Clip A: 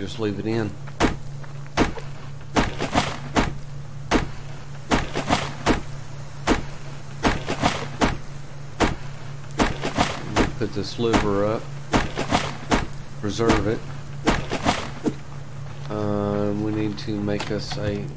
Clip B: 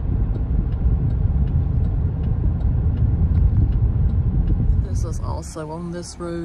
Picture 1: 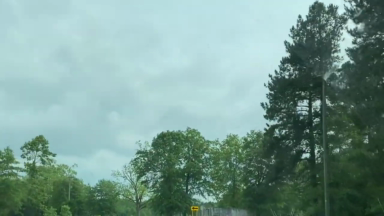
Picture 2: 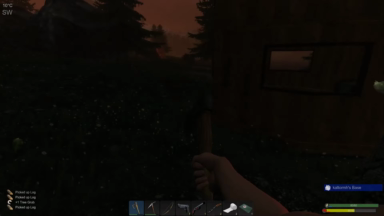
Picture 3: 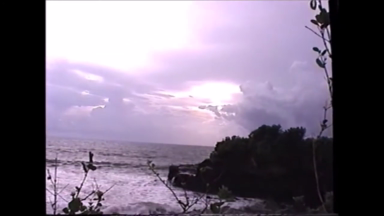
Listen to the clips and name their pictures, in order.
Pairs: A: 2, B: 1